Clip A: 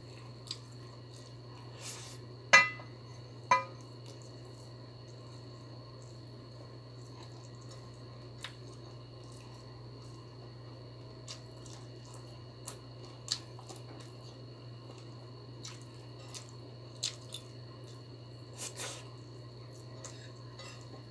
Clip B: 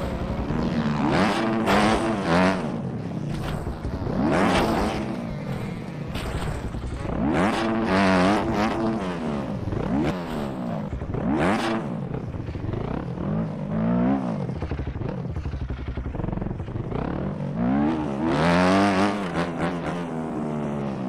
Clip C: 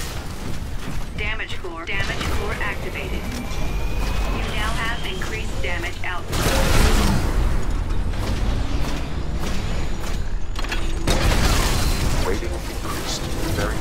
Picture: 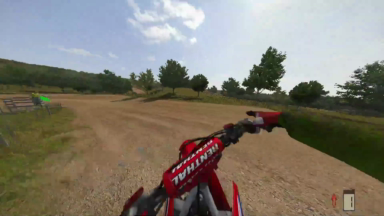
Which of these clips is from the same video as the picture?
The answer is B